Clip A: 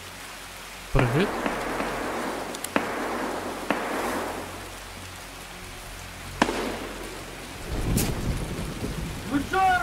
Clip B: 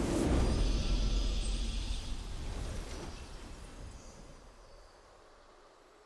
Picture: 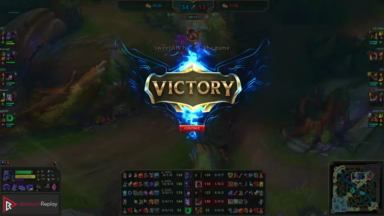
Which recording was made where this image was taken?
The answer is B